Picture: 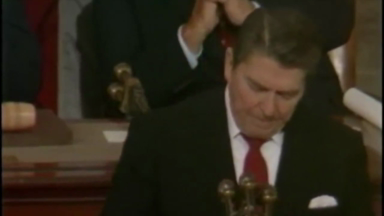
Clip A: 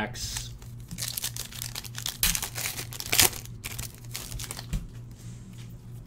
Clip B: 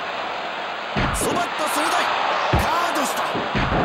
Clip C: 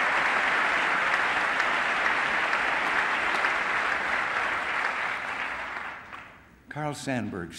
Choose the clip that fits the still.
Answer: C